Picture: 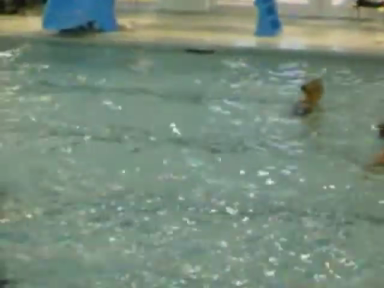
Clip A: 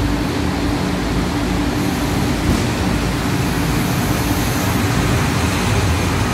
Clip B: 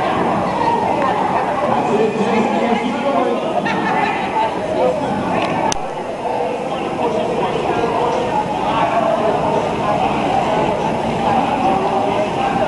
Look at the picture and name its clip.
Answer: B